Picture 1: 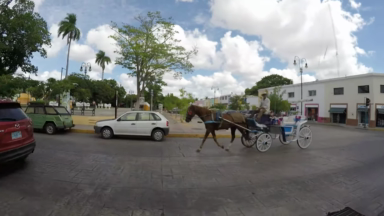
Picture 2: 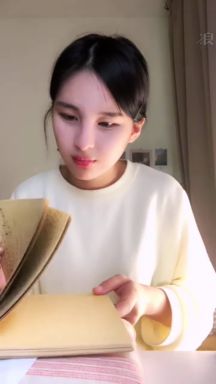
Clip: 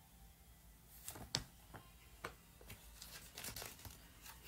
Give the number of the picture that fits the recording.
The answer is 2